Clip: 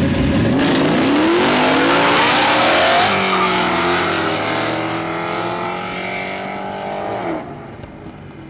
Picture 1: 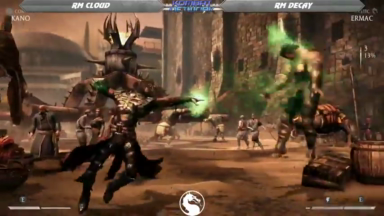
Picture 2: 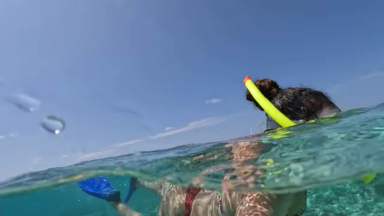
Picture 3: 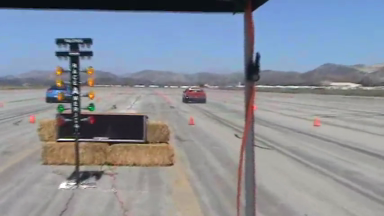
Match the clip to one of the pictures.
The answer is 3